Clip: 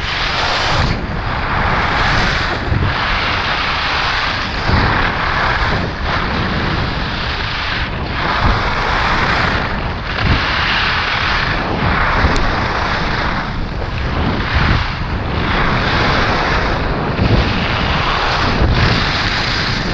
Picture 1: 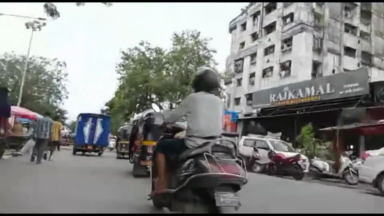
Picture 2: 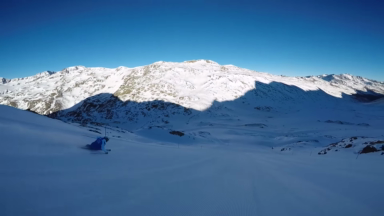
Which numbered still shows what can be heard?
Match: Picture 2